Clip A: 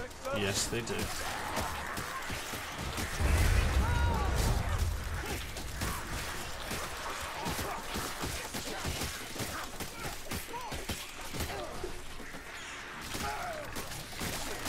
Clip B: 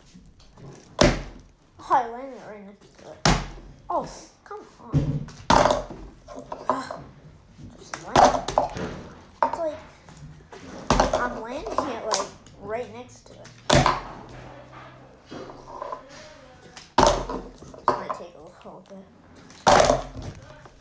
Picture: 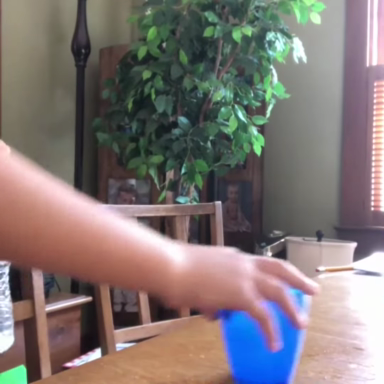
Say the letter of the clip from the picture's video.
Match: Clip B